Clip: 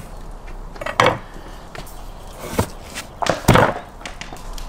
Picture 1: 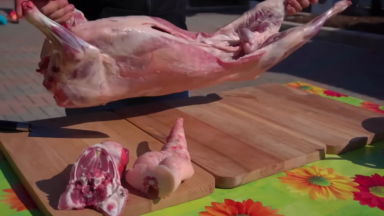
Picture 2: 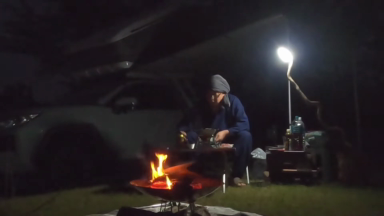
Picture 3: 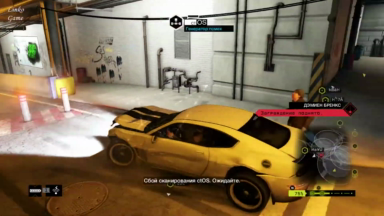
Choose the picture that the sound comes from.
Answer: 1